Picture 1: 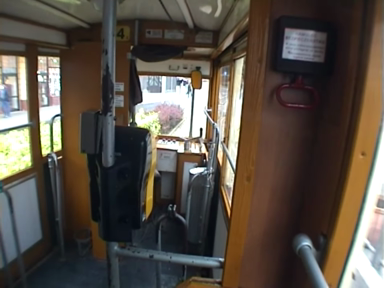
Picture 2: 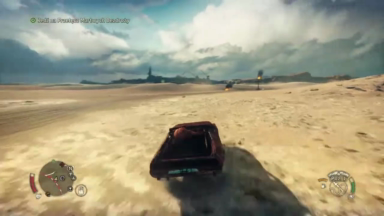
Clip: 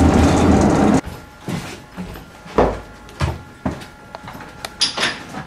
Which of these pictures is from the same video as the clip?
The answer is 1